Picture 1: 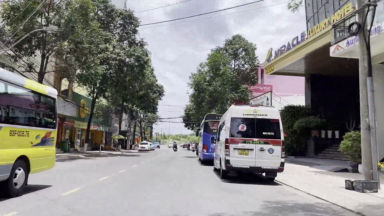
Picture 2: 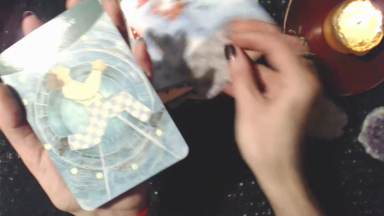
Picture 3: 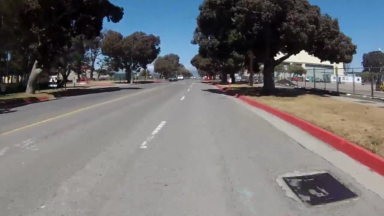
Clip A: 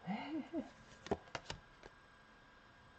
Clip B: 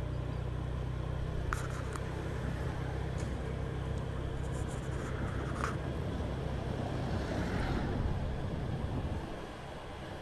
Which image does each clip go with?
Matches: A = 2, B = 1